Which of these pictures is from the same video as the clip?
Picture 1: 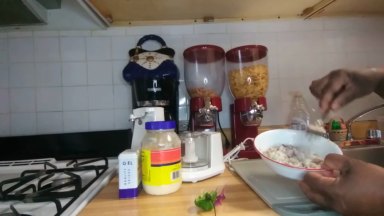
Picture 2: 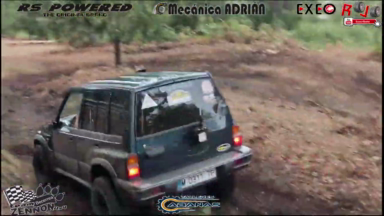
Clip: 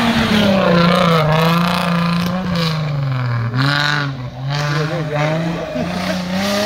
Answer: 2